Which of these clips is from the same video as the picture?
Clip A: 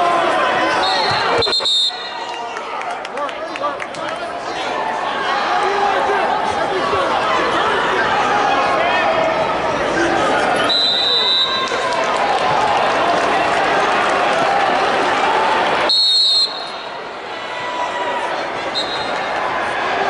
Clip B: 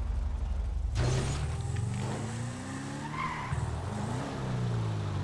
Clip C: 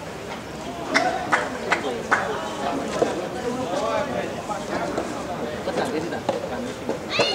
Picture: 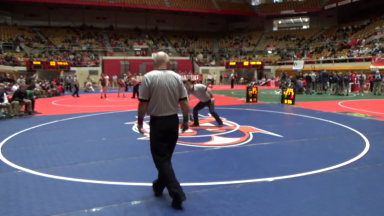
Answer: A